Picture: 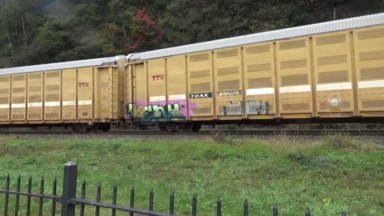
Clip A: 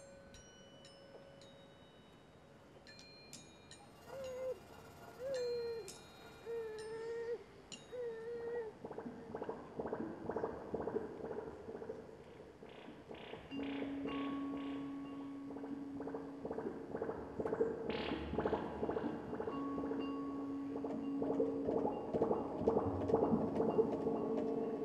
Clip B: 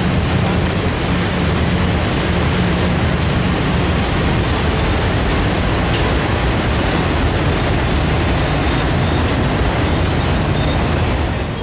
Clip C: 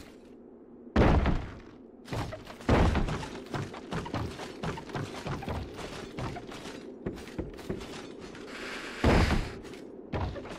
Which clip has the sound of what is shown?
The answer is B